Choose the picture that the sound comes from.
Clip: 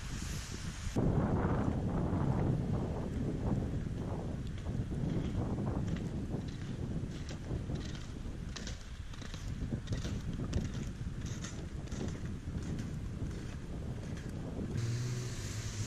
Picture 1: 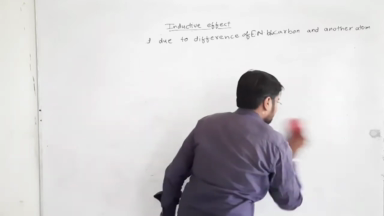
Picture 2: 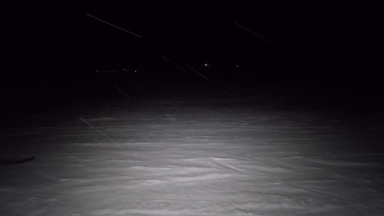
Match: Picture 2